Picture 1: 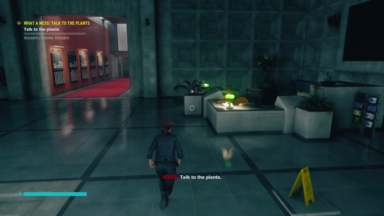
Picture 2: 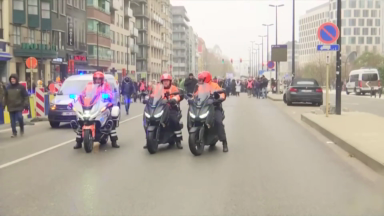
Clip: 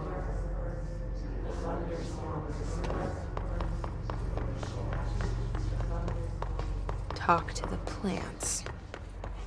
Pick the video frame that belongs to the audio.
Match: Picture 1